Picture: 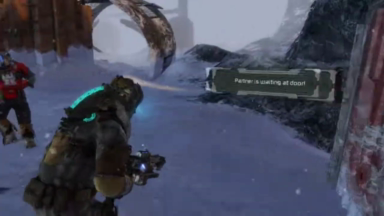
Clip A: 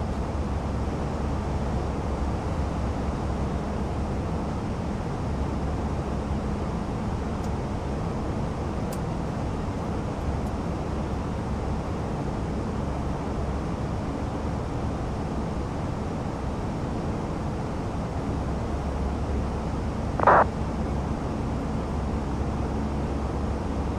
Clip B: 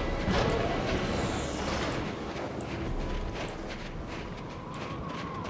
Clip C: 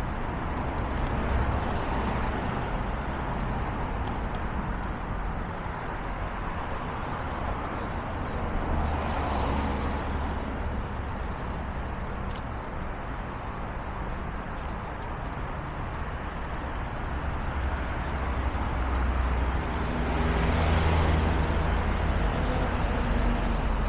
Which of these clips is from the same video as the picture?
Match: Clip B